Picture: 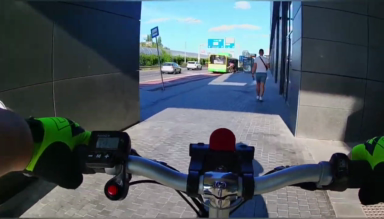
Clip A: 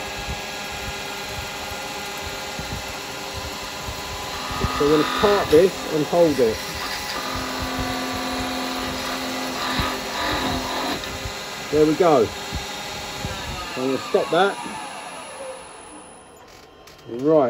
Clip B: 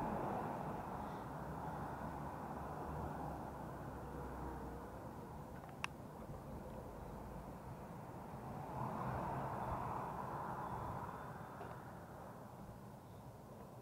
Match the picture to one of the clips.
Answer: B